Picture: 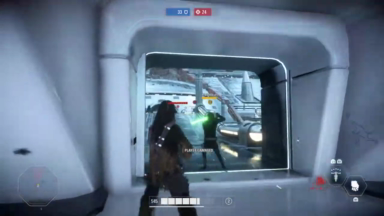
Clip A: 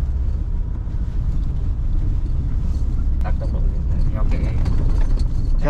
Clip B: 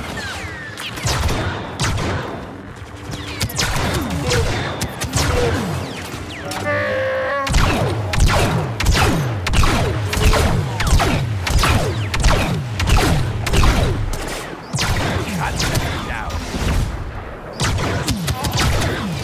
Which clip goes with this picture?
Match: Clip B